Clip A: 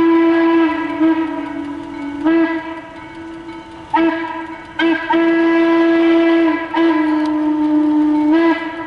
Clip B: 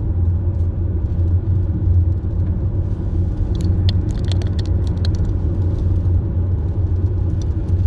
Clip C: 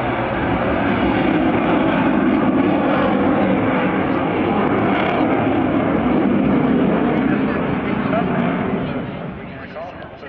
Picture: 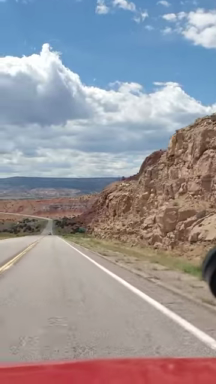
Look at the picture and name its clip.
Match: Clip B